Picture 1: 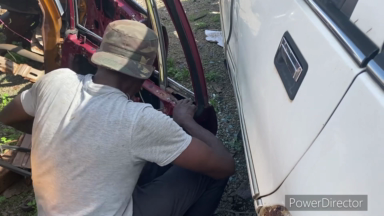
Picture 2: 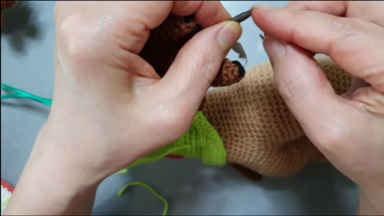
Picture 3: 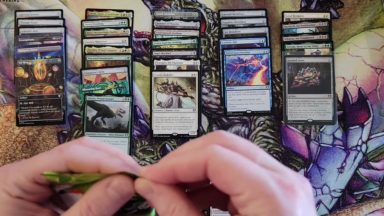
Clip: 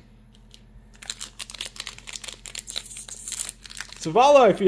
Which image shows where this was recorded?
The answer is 3